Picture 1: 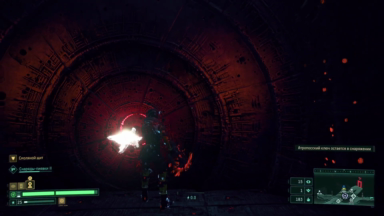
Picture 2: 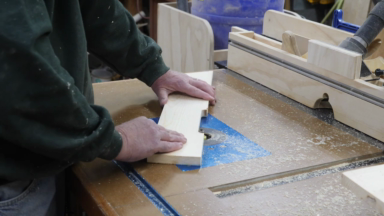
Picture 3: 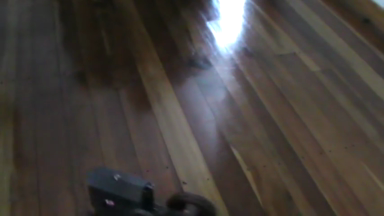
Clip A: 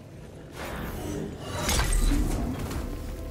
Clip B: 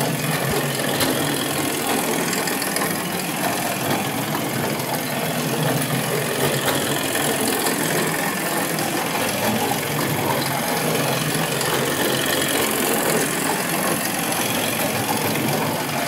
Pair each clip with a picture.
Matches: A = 1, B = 3